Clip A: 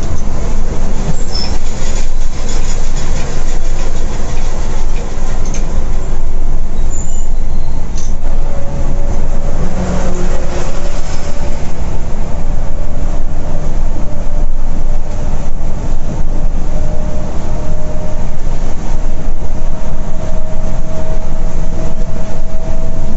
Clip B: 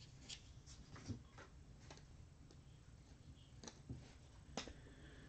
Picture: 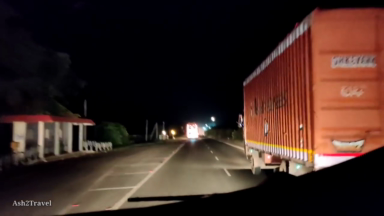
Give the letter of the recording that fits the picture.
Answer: A